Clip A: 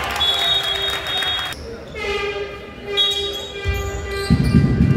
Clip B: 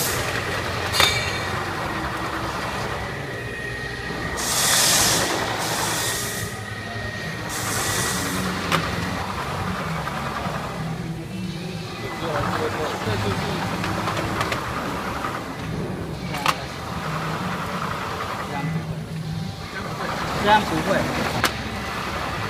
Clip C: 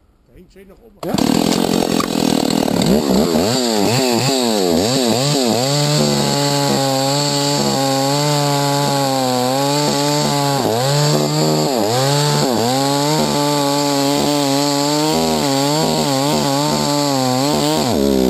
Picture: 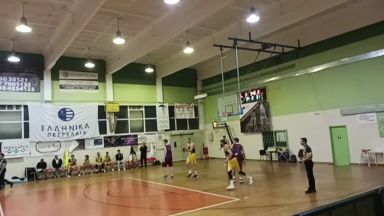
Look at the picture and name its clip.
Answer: A